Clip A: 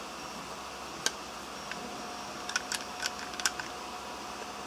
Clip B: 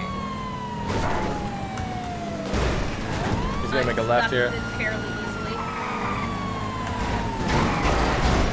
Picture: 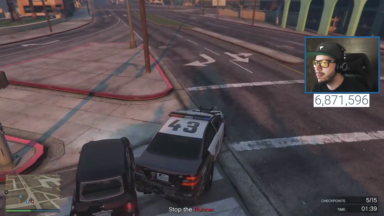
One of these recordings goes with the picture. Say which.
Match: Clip B